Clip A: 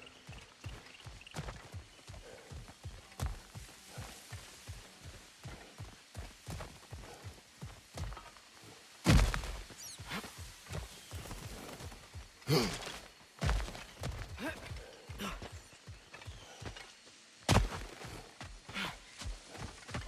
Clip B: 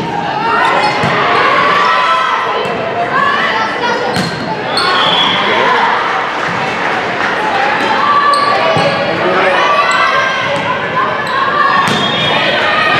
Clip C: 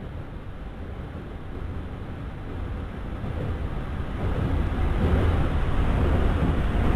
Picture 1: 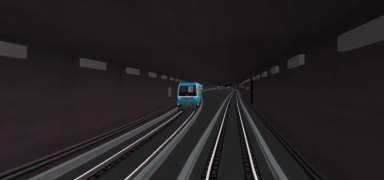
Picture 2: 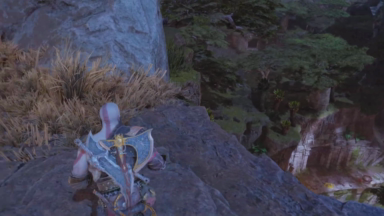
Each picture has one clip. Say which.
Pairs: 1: C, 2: A